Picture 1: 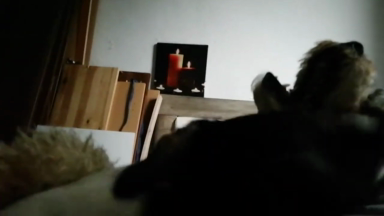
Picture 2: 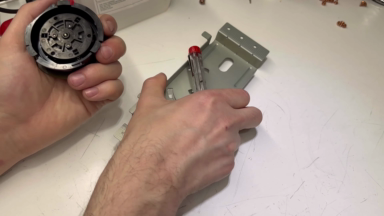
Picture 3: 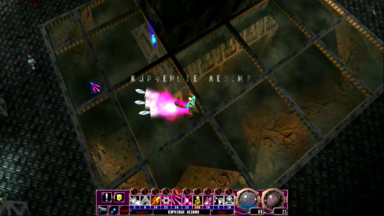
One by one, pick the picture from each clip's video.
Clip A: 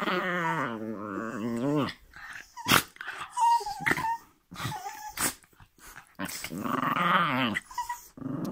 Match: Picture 1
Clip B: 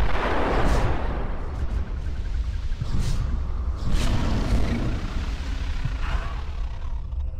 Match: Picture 3